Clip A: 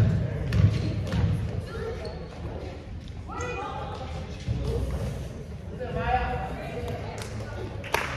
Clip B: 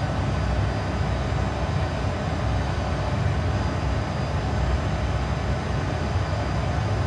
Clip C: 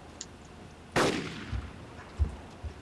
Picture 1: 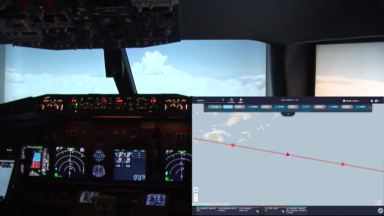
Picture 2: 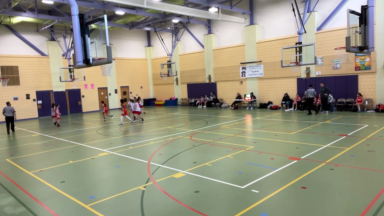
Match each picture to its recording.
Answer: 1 B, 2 A